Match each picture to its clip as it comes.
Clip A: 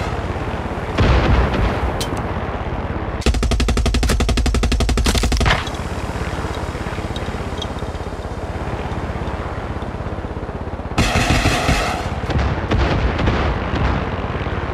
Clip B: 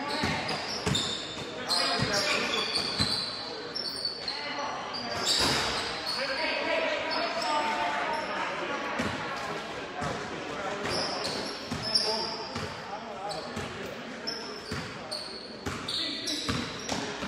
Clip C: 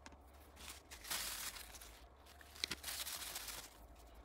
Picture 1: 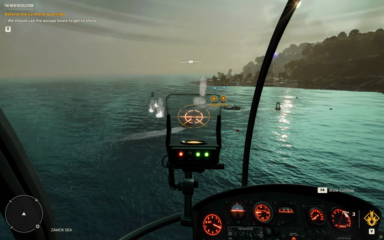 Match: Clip A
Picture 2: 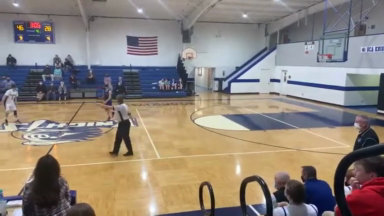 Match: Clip B